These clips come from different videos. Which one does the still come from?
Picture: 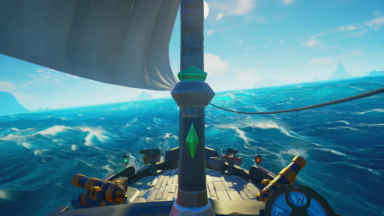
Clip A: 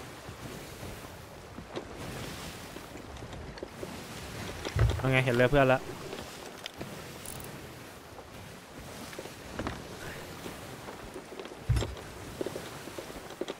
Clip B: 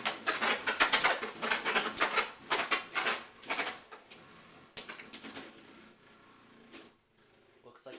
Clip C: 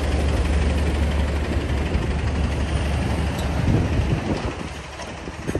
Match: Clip A